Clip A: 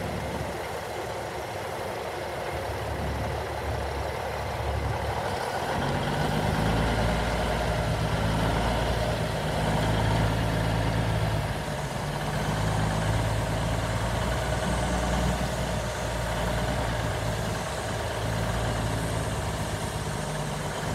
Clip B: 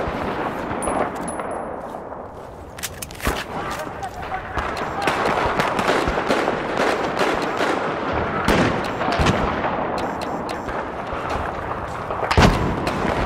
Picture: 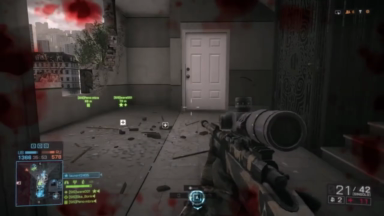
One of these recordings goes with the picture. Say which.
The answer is B